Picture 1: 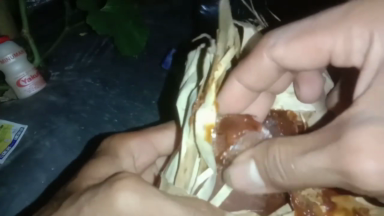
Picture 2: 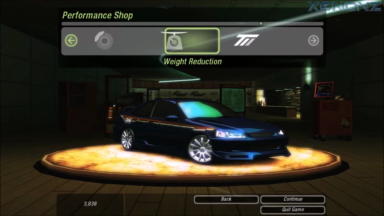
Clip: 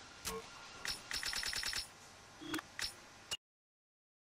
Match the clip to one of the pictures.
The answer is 2